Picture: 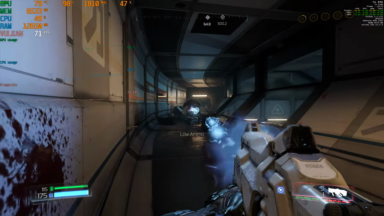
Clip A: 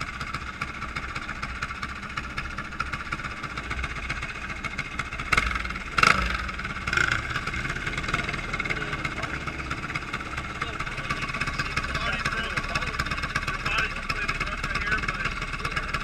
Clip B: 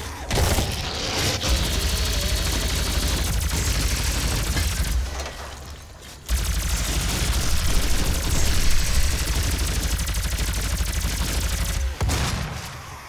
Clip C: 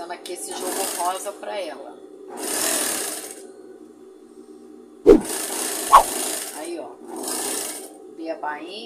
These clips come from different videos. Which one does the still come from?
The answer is B